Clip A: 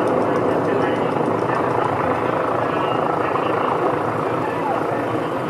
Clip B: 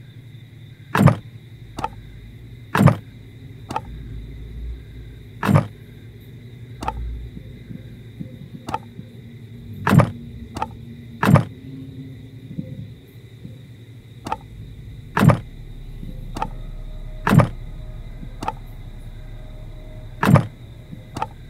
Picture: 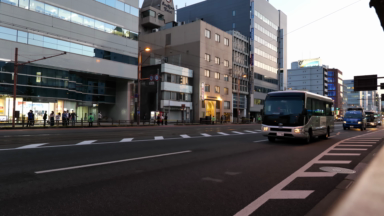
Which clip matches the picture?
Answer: A